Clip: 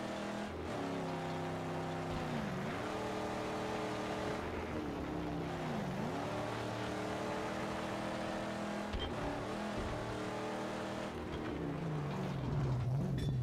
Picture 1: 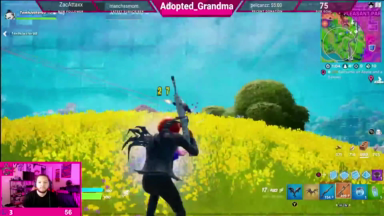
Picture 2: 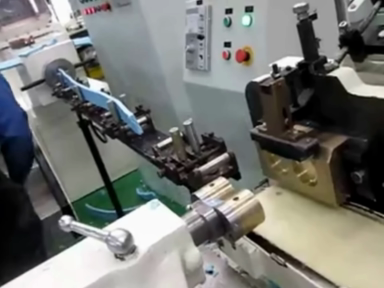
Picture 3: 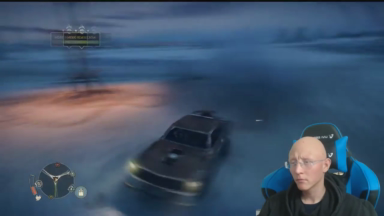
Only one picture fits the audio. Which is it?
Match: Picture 3